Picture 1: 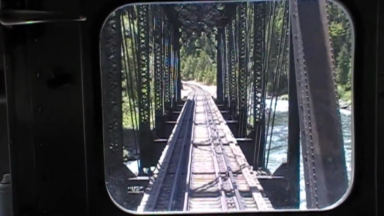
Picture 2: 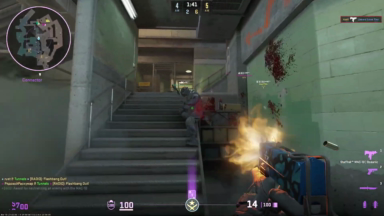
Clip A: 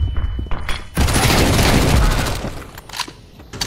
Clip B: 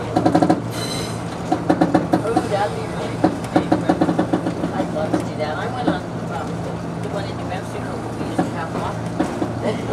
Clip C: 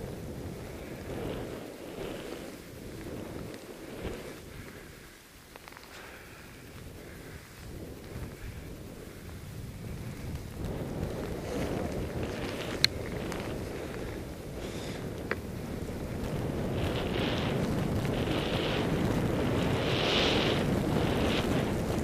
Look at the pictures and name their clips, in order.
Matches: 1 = B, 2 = A